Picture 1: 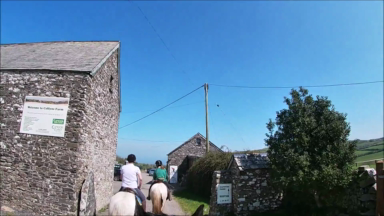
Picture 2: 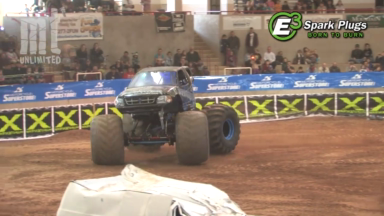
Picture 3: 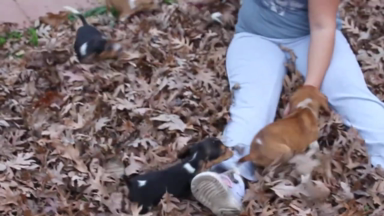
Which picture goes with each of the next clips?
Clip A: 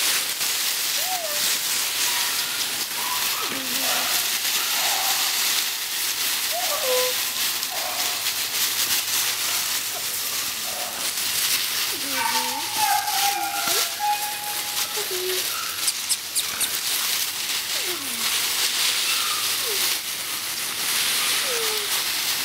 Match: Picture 3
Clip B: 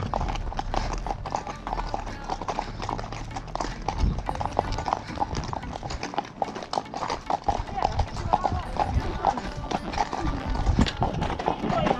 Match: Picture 1